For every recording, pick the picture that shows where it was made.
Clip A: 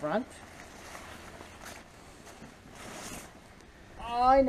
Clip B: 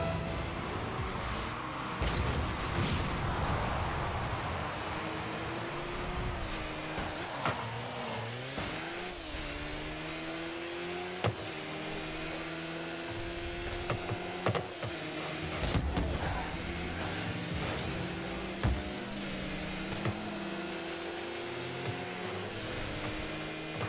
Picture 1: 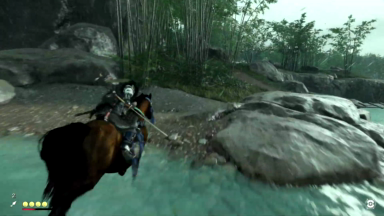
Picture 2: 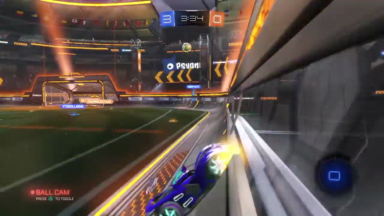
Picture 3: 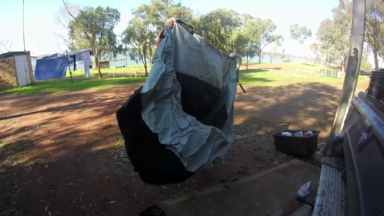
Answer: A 3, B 2